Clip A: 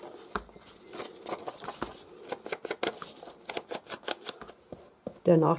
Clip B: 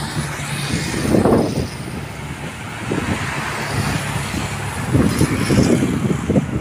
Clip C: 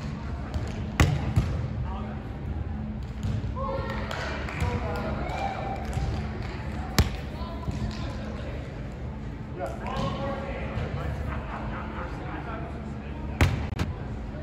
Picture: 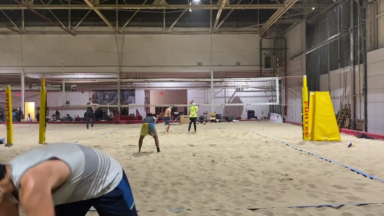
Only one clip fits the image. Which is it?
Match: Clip C